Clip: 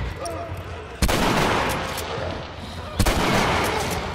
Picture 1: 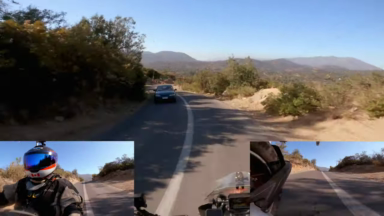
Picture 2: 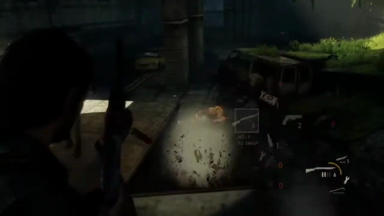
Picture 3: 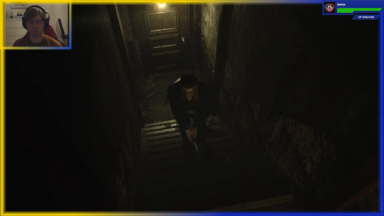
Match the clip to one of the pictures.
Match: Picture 2